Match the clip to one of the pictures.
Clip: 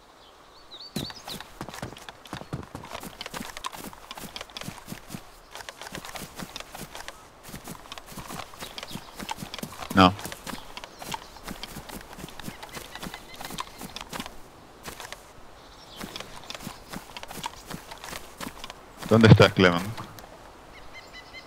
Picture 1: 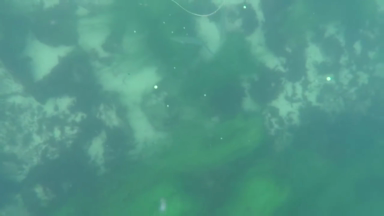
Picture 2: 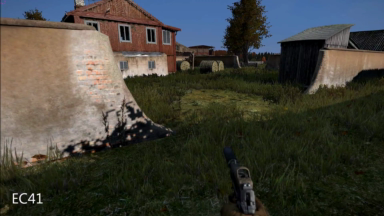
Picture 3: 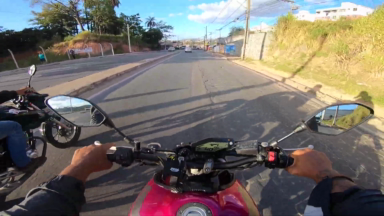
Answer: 2